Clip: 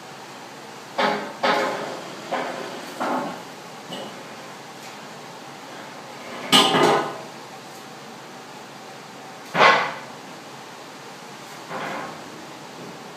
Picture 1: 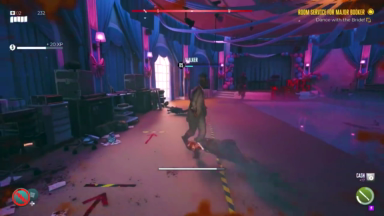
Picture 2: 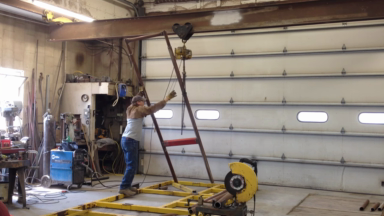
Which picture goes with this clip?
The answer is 2